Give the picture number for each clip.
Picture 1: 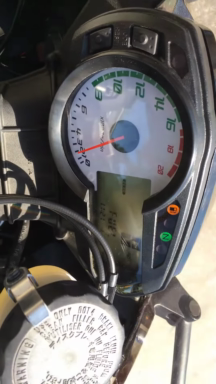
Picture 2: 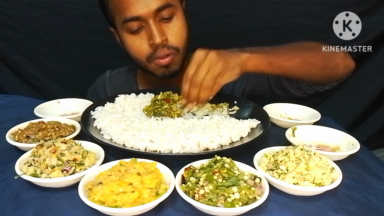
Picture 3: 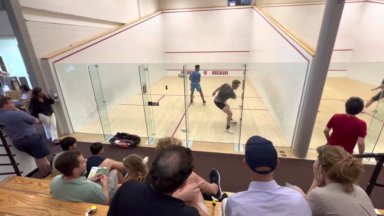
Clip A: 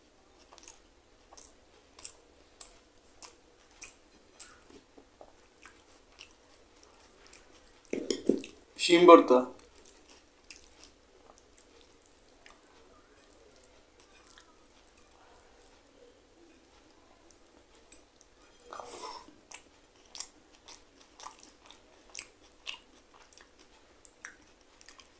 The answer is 2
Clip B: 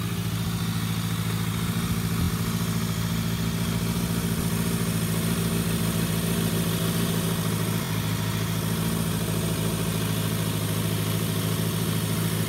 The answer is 1